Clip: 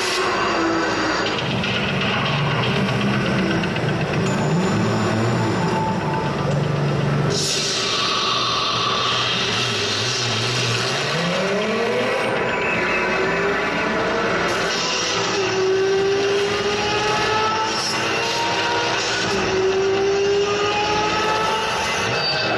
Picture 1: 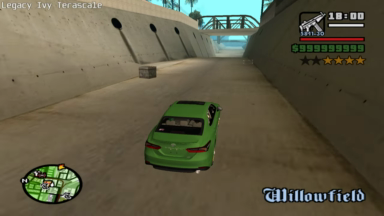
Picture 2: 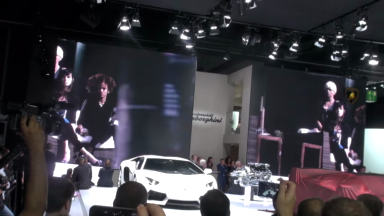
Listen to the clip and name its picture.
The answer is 2